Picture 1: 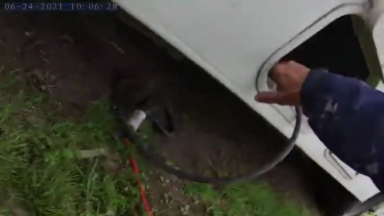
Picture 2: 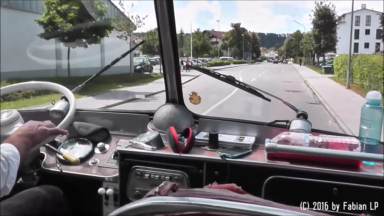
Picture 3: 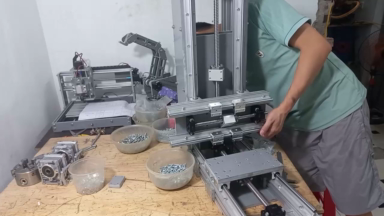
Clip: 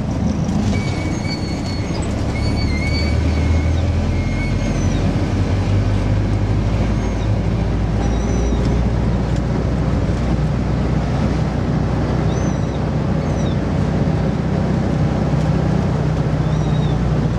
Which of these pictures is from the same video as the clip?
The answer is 2